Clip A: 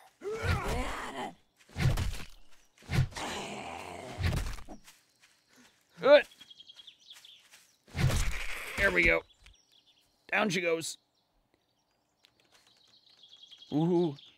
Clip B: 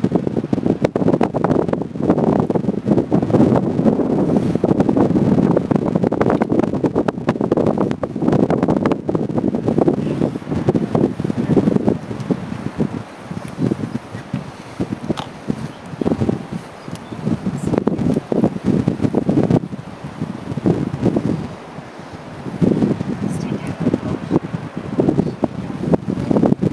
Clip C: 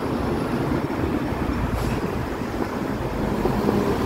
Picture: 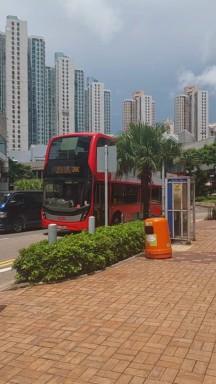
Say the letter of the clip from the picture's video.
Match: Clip C